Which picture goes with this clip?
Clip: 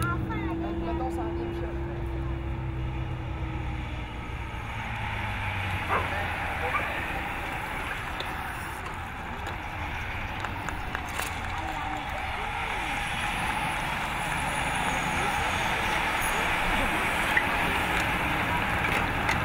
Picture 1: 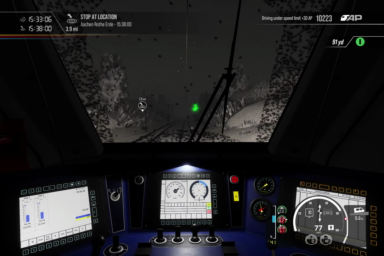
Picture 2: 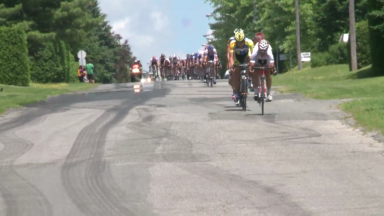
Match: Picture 2